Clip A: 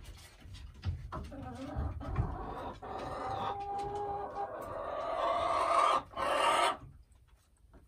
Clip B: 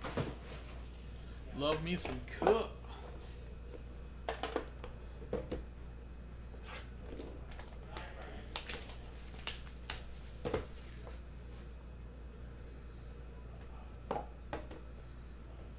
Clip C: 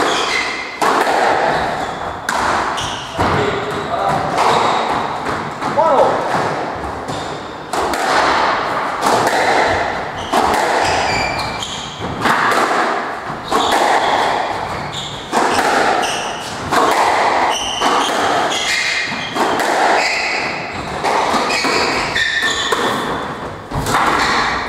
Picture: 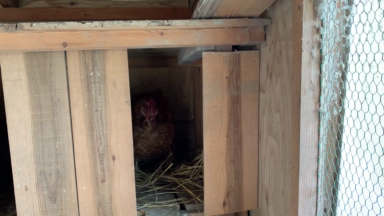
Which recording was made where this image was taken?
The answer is A